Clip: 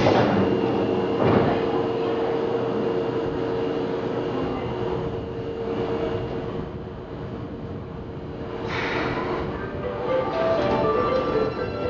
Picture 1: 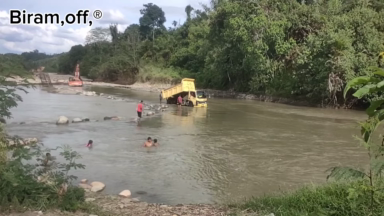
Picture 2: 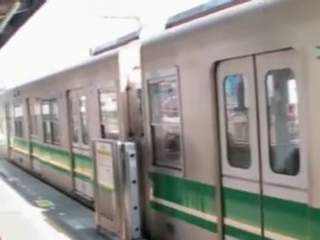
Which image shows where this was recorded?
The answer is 2